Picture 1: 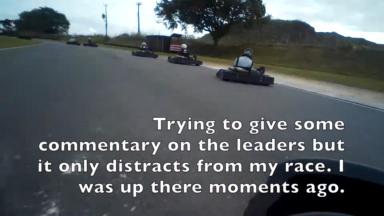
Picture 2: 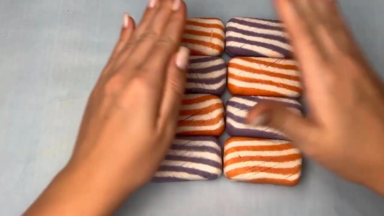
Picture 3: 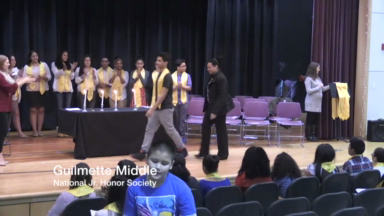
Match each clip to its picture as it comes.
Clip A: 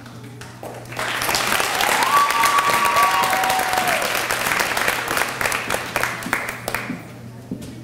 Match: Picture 3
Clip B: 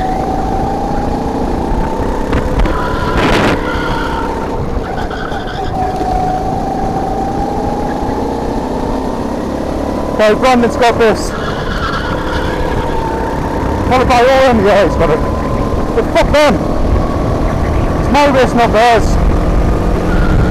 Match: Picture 1